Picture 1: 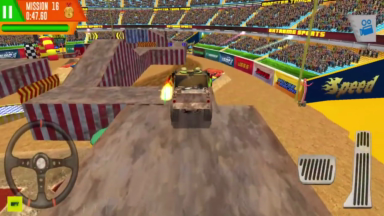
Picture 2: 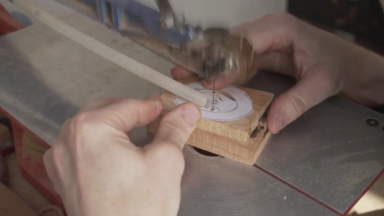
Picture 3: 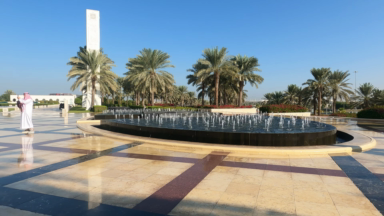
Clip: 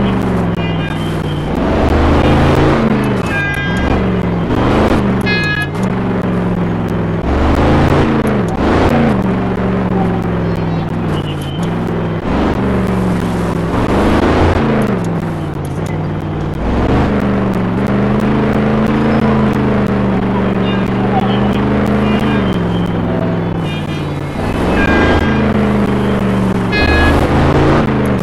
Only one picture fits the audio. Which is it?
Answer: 1